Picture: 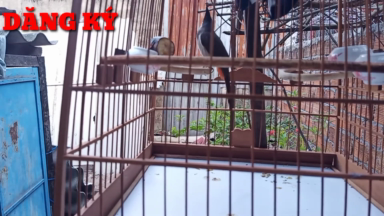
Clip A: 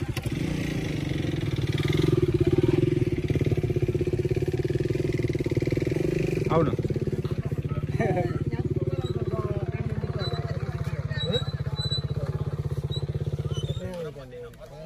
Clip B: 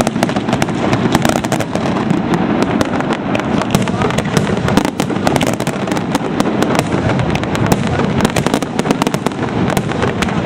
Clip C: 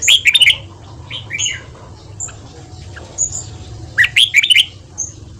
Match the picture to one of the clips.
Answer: C